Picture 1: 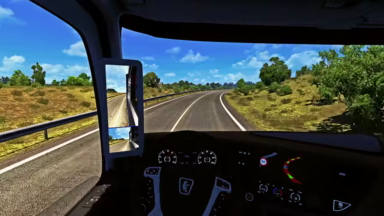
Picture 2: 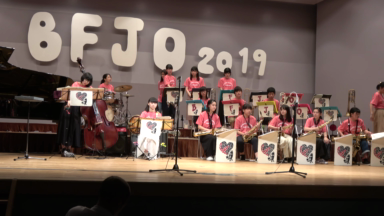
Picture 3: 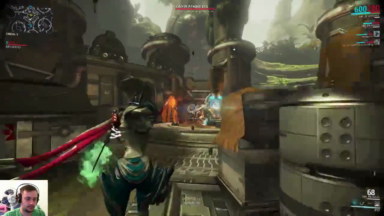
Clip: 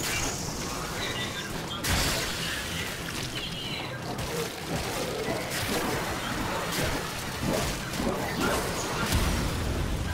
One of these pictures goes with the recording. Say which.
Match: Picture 3